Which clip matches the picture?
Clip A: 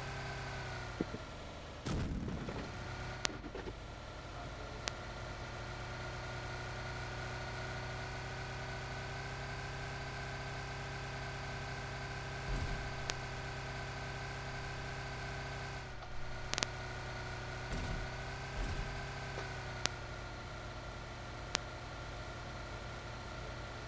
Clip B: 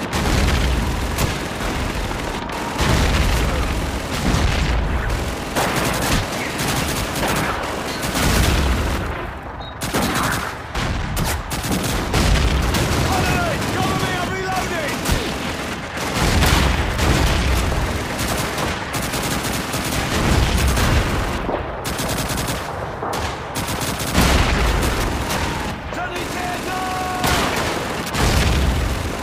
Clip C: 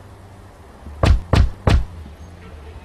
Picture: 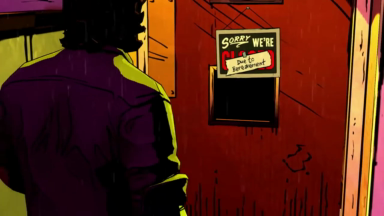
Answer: C